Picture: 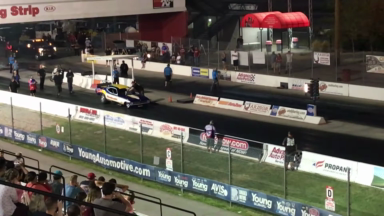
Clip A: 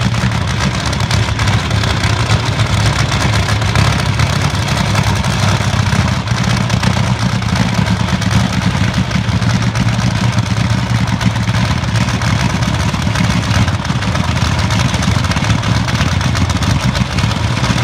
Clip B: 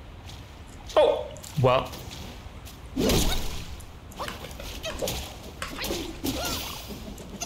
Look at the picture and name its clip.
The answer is A